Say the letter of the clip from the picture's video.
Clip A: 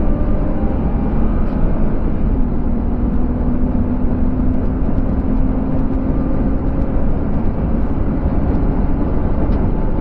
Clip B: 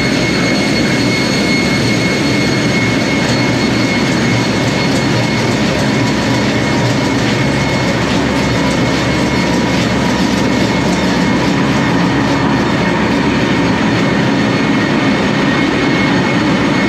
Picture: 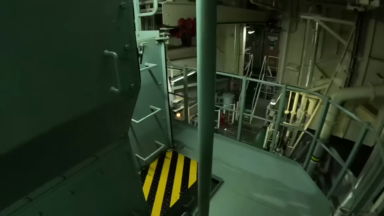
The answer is B